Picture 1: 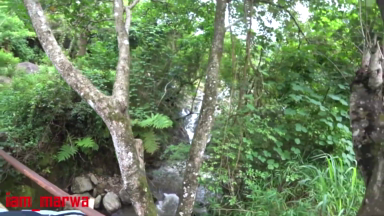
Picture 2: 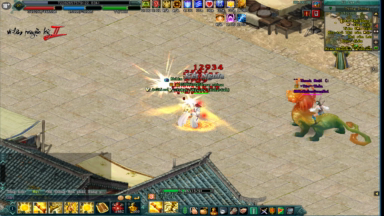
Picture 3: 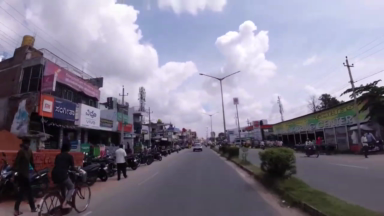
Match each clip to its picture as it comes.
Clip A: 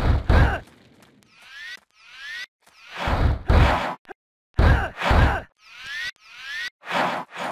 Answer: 2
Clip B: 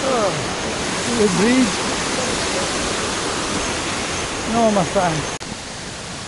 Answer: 1